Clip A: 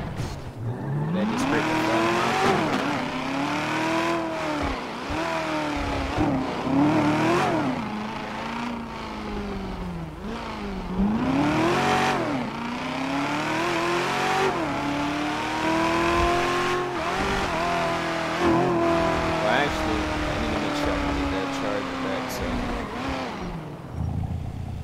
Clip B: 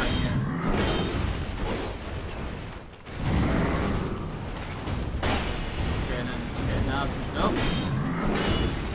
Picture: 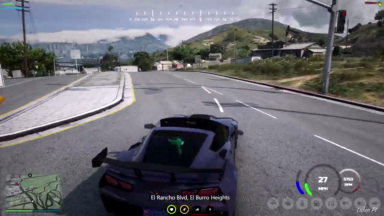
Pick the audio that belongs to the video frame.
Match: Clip A